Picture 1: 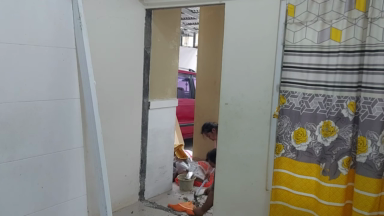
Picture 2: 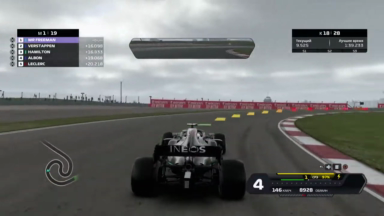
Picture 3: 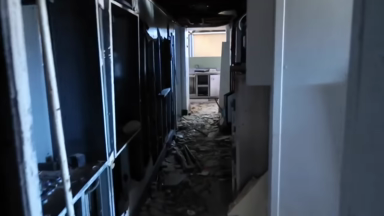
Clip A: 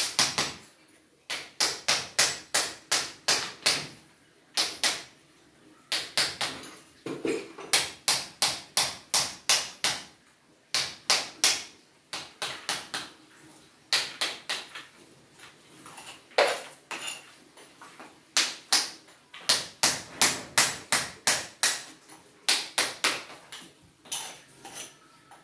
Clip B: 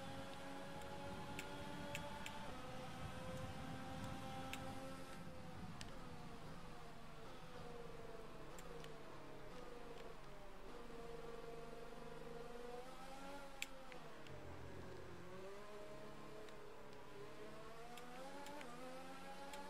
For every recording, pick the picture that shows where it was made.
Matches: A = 1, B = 2